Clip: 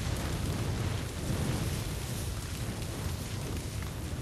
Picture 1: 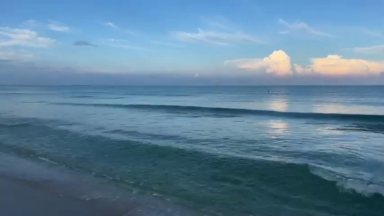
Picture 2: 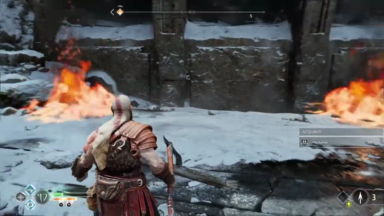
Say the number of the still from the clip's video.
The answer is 2